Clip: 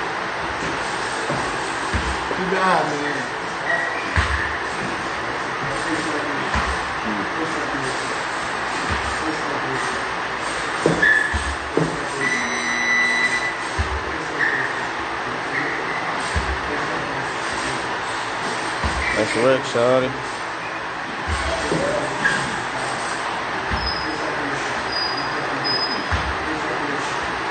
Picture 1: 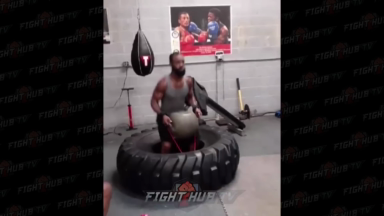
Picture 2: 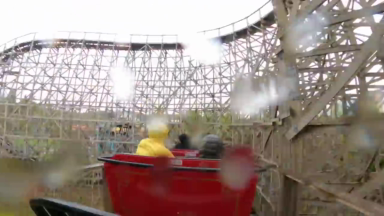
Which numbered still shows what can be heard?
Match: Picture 1